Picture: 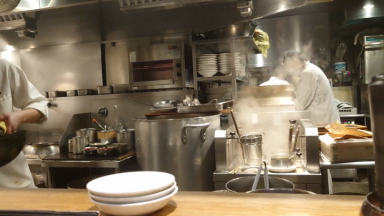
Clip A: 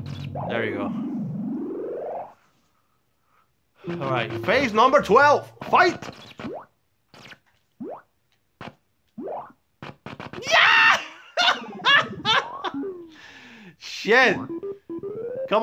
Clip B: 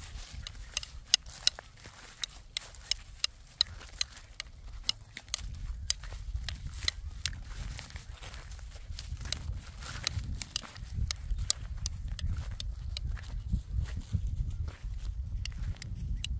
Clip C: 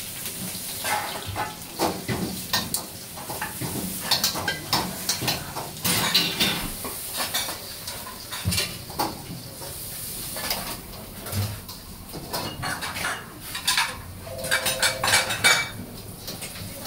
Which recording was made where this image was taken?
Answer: C